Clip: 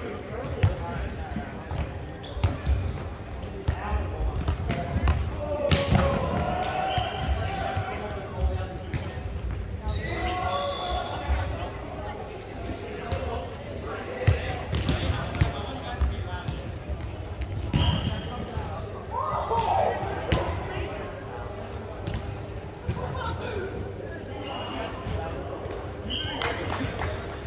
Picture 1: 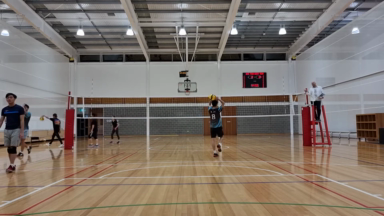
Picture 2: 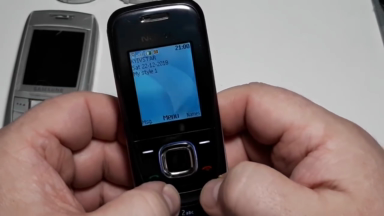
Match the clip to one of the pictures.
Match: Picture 1